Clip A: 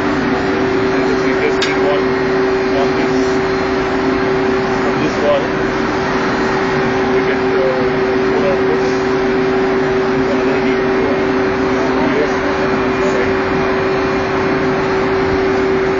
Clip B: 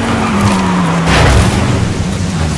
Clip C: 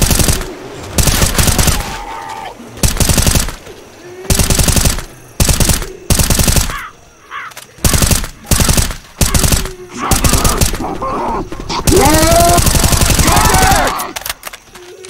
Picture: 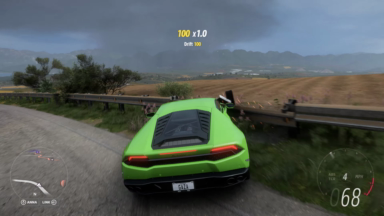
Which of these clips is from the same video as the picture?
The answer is B